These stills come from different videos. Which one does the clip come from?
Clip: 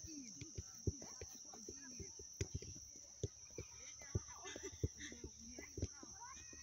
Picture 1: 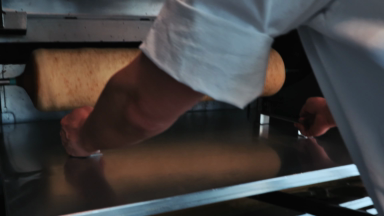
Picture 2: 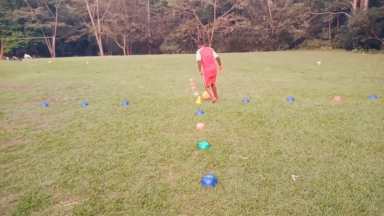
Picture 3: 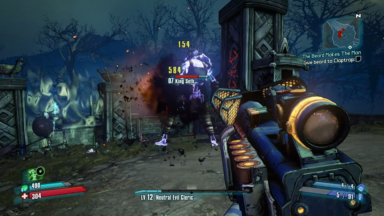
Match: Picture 2